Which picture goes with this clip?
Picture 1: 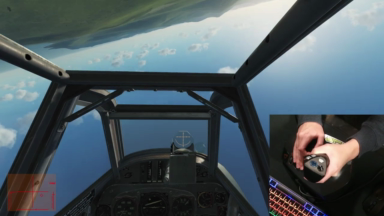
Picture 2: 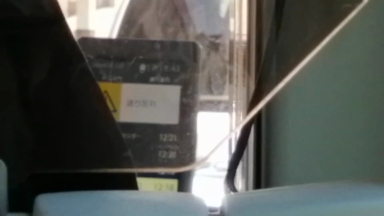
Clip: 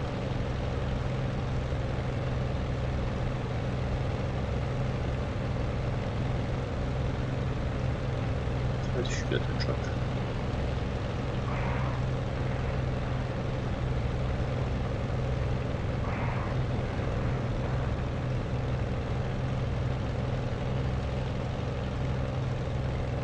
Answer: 1